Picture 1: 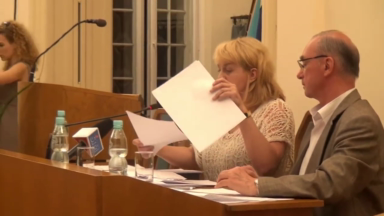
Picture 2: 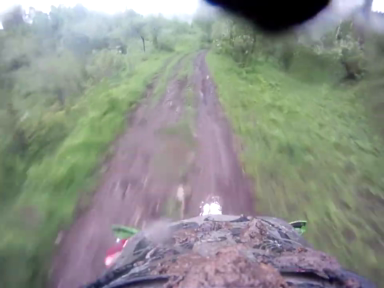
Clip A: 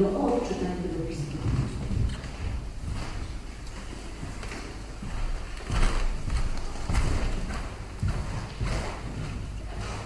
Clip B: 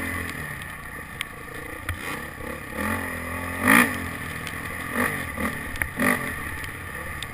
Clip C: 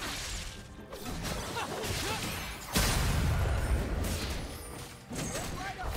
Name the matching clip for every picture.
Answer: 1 A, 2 B